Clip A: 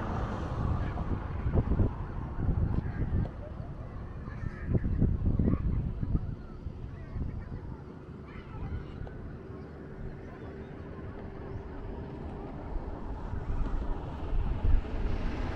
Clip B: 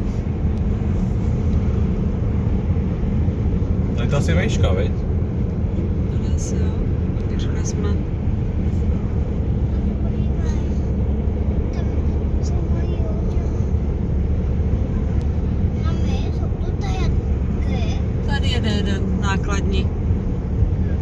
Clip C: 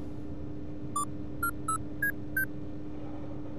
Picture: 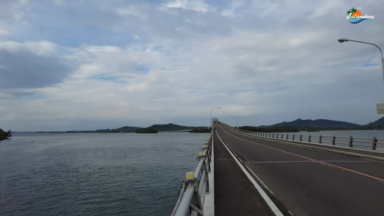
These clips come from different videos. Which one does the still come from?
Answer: A